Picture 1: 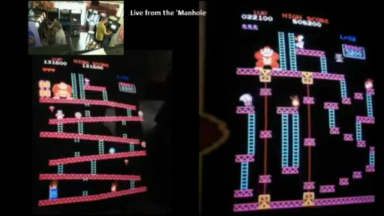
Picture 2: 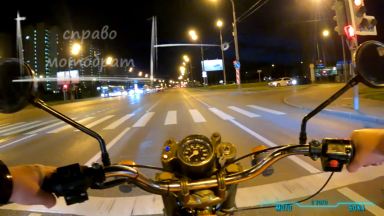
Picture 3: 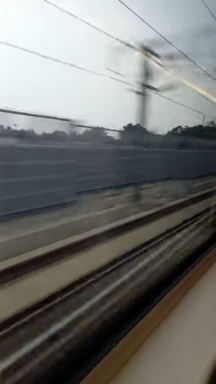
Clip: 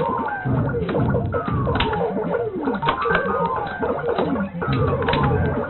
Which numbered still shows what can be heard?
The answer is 1